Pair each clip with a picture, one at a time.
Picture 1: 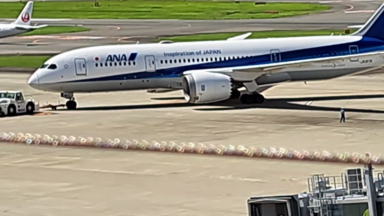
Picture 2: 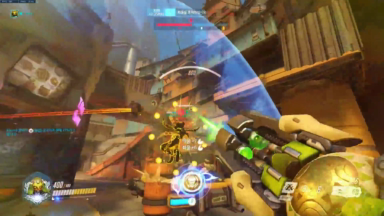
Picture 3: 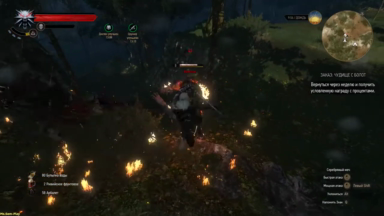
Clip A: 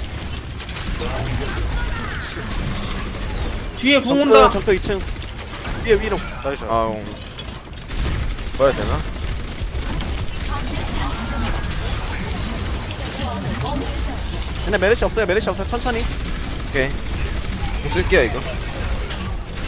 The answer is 2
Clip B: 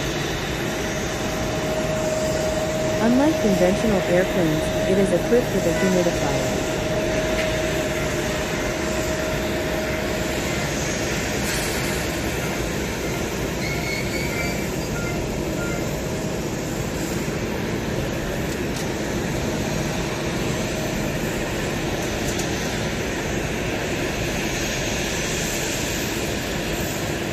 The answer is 1